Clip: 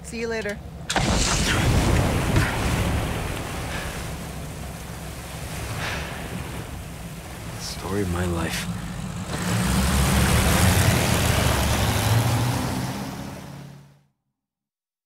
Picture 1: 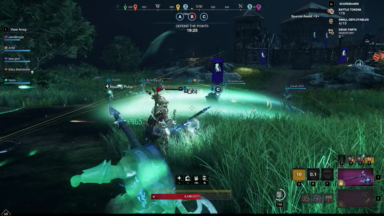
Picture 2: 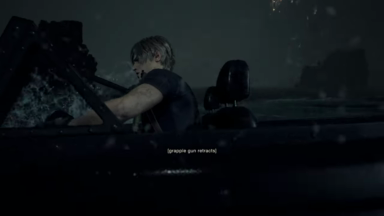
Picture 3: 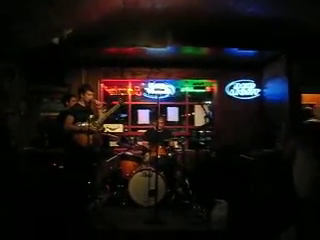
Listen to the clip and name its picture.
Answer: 2